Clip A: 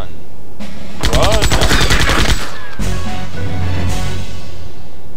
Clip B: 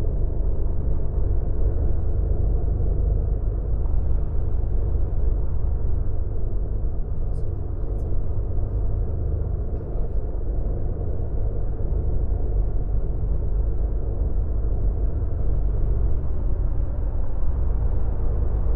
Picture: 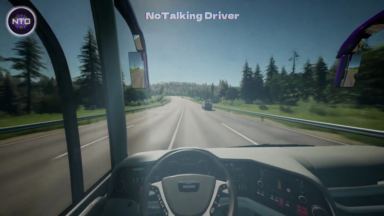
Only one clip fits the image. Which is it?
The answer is B